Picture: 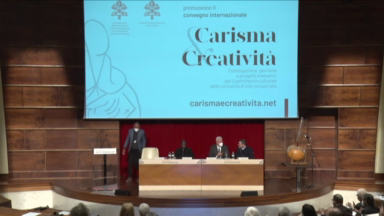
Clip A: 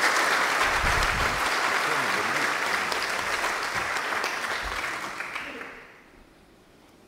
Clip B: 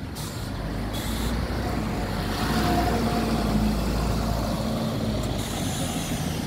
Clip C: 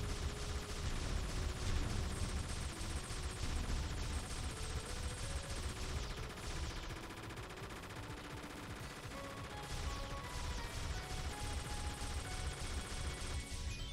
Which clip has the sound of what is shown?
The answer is A